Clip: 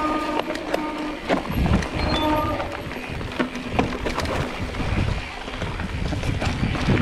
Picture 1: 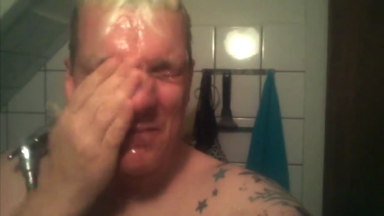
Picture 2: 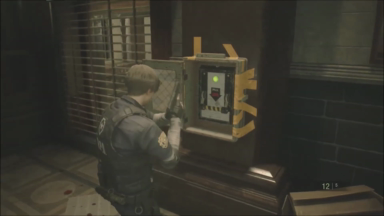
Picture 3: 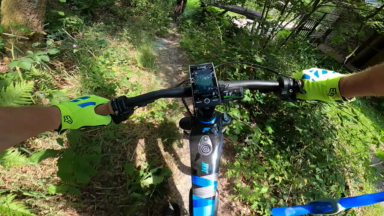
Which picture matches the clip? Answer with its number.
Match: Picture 3